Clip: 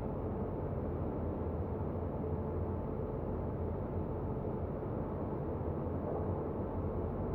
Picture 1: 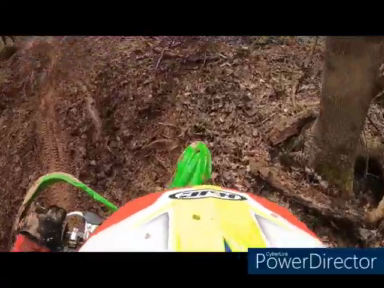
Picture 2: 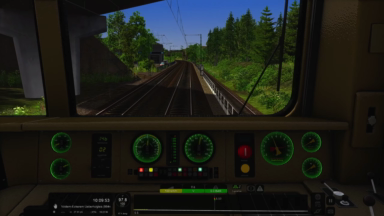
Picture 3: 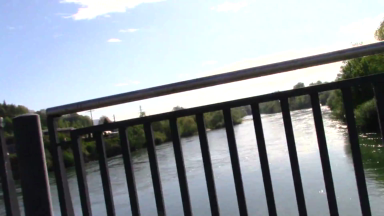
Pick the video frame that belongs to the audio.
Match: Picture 2